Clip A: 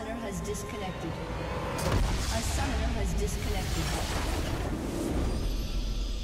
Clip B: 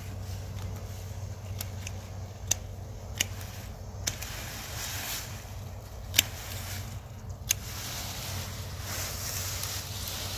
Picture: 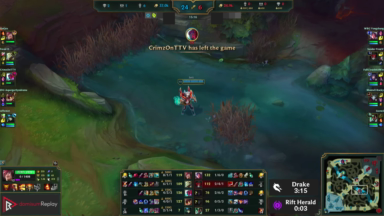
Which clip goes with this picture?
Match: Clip A